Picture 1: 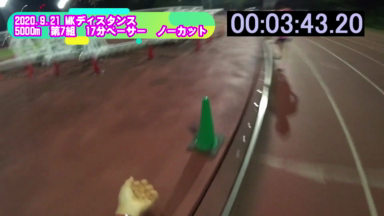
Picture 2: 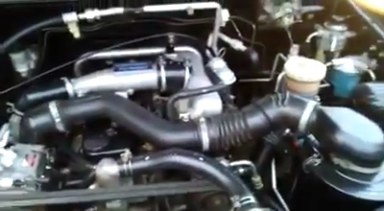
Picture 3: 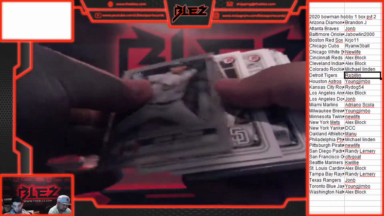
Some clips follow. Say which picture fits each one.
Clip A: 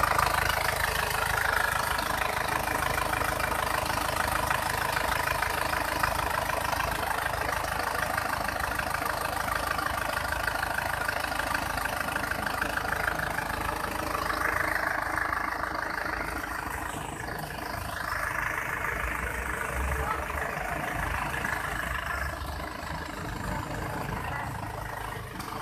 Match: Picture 2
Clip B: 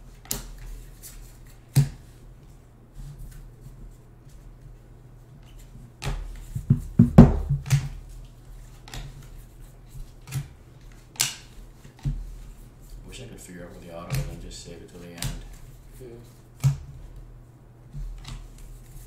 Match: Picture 3